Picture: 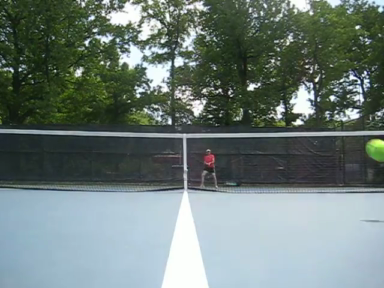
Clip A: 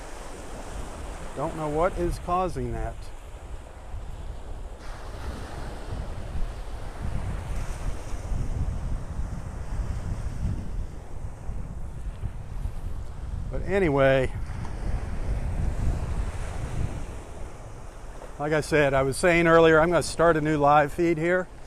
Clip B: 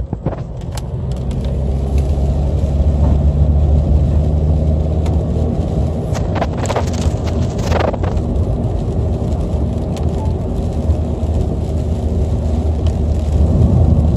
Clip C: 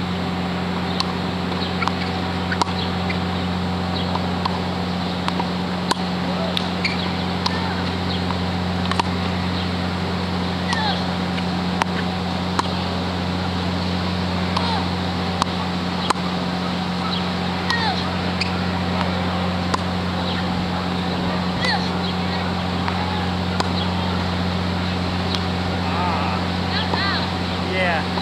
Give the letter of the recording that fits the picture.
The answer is C